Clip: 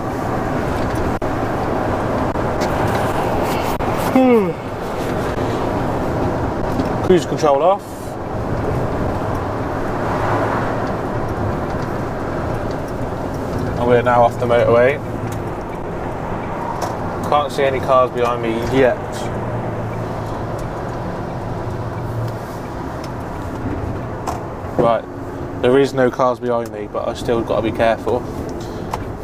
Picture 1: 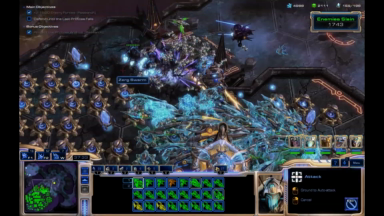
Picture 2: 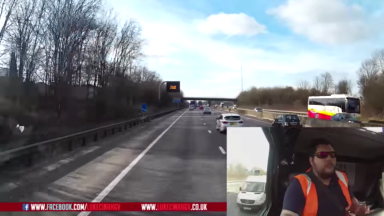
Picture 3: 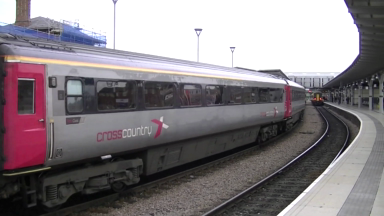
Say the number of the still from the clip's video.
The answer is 2